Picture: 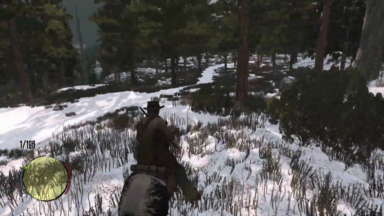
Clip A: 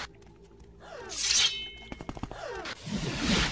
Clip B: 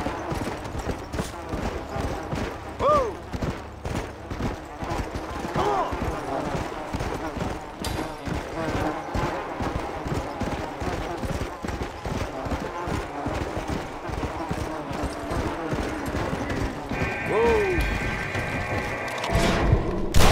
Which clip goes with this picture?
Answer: B